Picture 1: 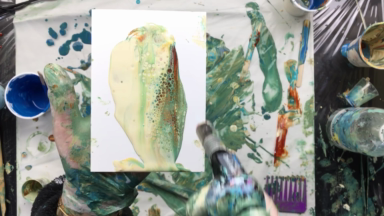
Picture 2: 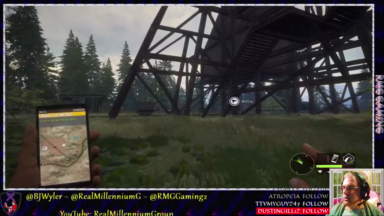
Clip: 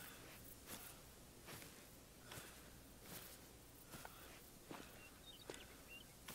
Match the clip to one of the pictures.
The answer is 2